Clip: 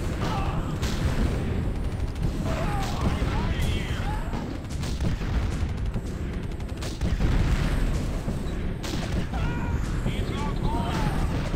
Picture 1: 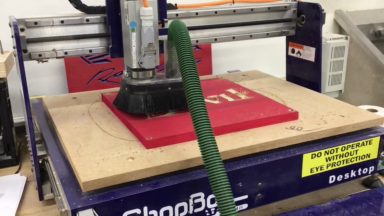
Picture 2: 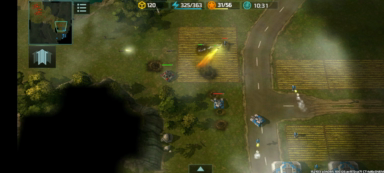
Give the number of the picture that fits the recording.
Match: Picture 2